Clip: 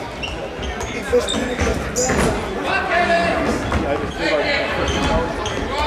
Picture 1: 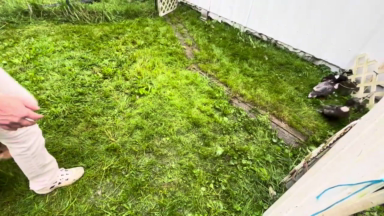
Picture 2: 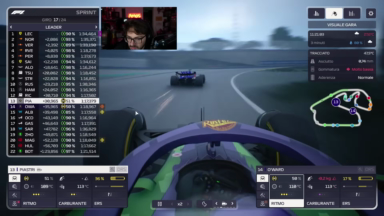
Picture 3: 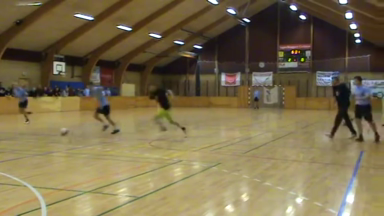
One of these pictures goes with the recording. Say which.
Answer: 3